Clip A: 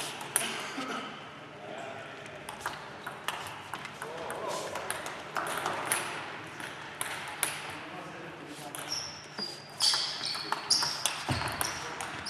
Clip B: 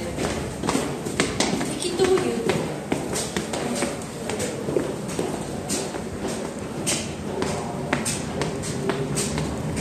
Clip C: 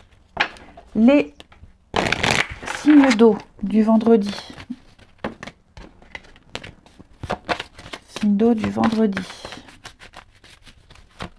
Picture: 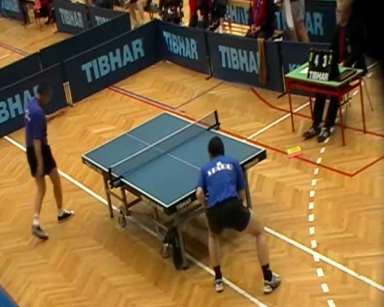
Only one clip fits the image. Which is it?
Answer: A